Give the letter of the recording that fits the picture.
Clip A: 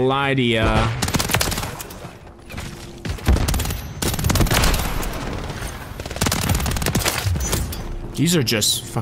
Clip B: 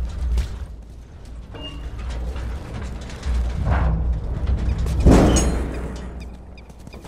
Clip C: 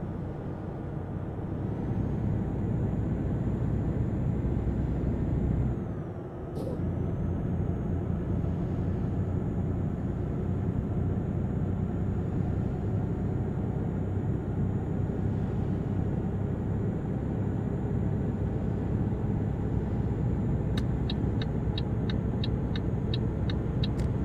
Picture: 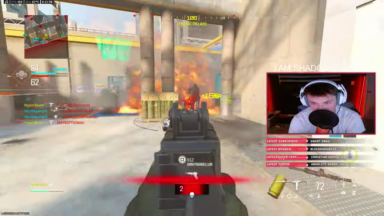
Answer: A